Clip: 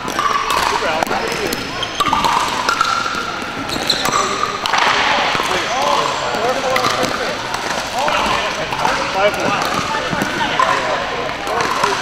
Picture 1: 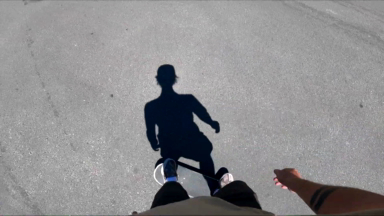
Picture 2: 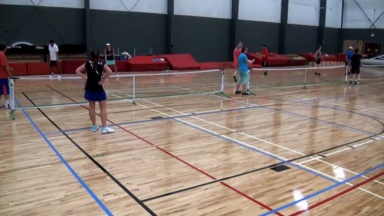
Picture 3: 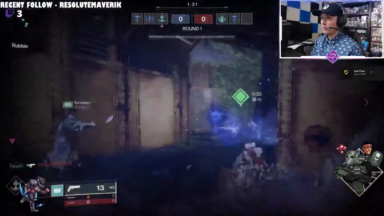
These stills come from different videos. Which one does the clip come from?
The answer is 2